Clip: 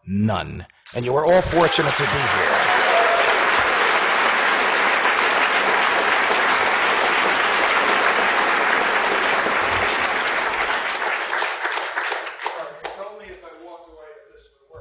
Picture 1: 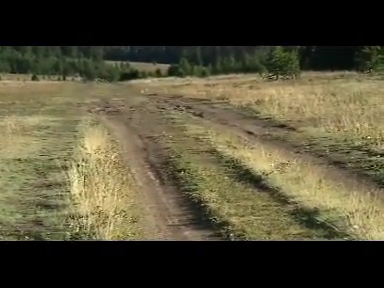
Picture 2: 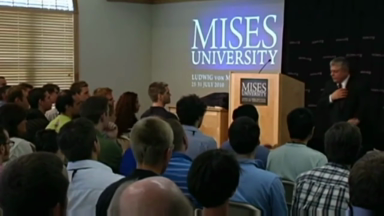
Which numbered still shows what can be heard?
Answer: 2